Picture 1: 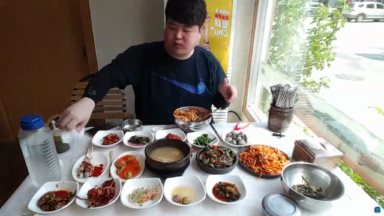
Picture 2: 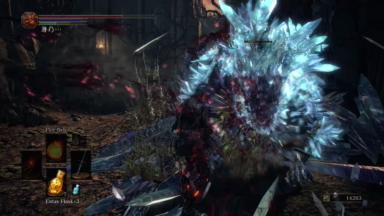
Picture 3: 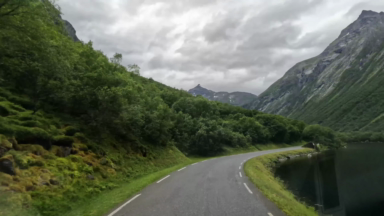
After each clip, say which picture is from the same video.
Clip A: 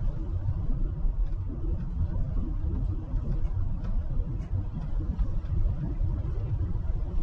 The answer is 3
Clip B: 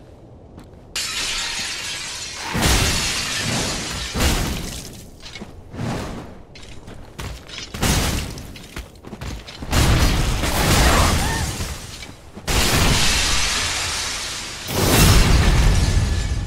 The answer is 2